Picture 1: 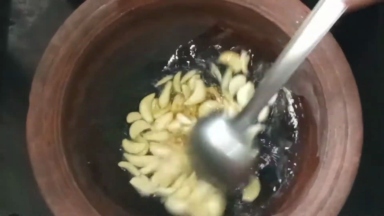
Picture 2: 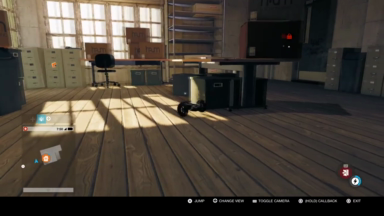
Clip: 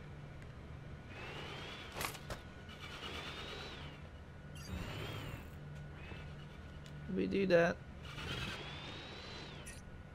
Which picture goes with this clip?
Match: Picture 2